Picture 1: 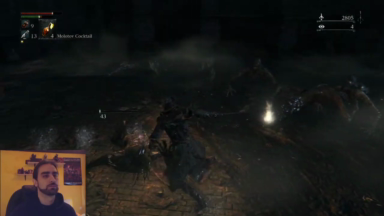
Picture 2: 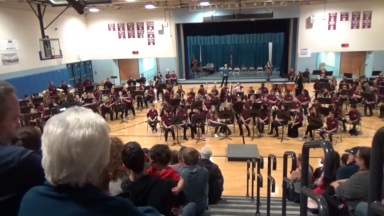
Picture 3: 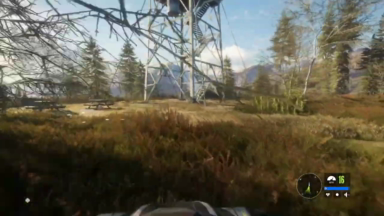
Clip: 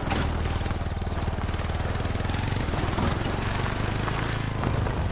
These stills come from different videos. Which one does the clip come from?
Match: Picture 3